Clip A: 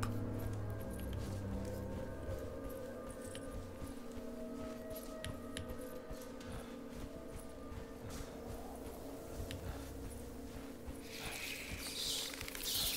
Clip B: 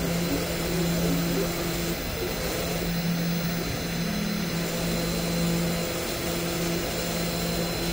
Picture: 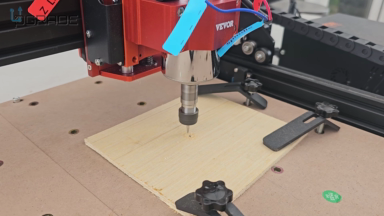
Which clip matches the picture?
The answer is B